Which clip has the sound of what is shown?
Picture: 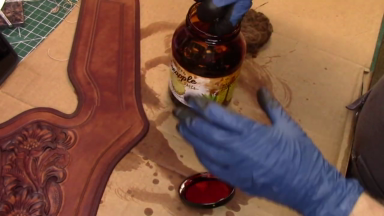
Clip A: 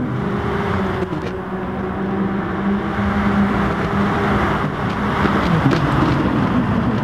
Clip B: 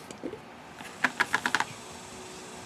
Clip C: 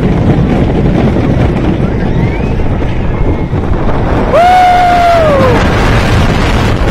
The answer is B